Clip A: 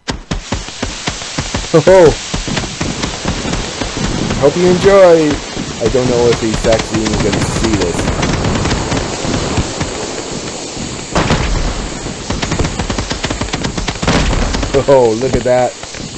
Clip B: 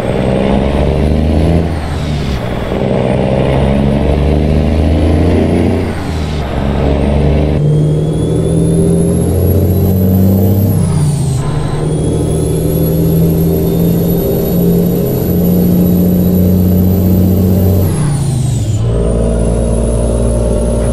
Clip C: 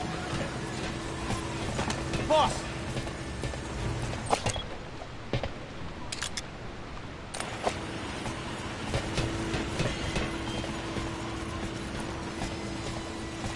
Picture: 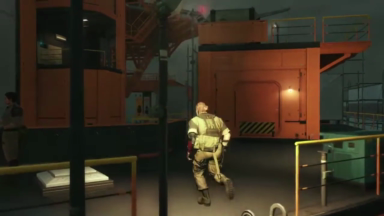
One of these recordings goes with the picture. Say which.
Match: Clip C